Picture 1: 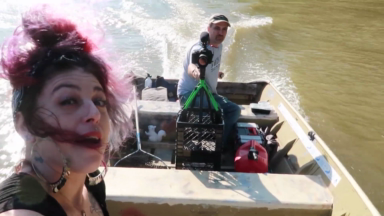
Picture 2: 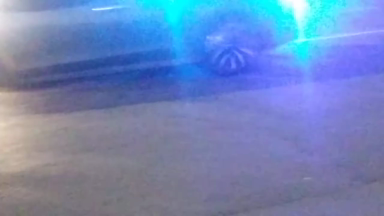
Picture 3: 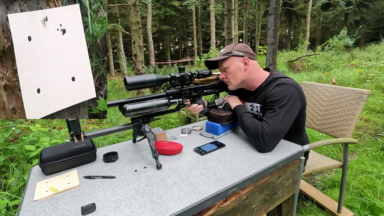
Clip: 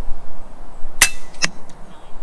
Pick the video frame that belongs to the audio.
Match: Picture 3